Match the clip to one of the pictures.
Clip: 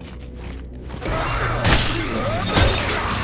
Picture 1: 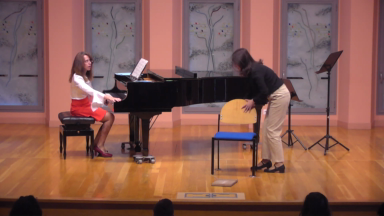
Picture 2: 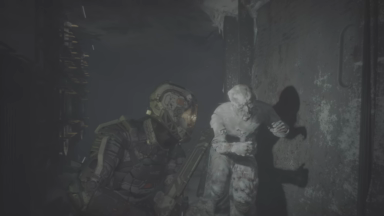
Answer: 2